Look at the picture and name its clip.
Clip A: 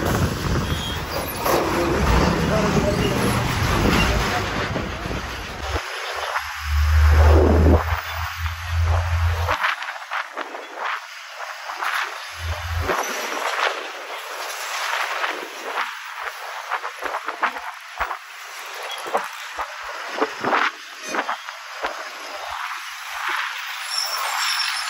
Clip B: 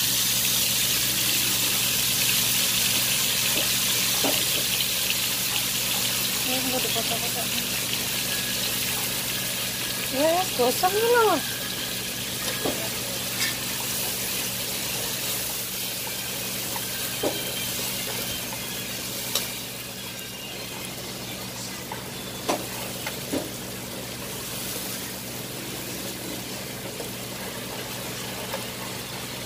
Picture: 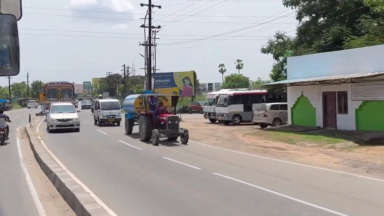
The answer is A